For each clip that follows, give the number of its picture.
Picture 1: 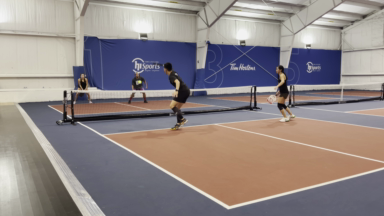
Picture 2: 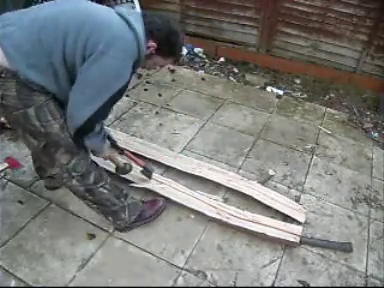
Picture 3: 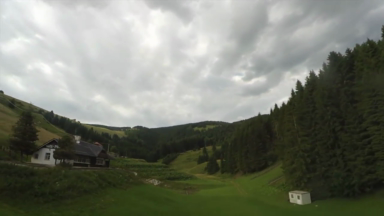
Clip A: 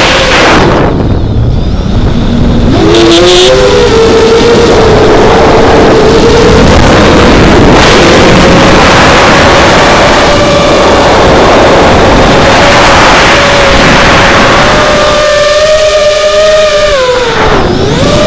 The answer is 3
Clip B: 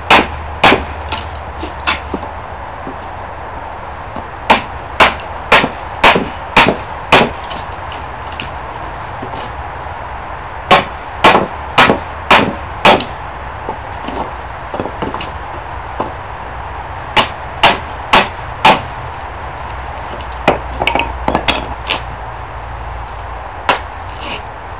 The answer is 2